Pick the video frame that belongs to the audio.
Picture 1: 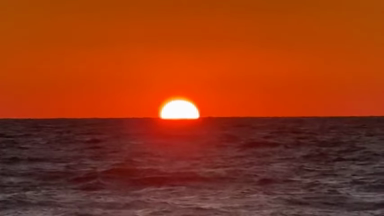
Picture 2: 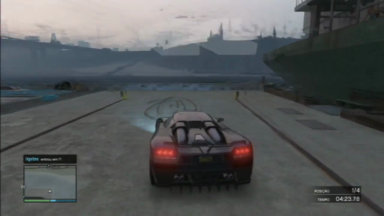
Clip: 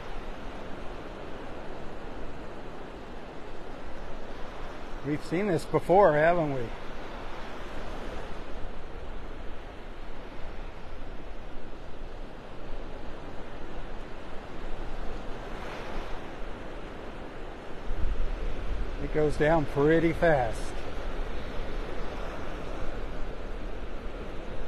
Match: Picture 1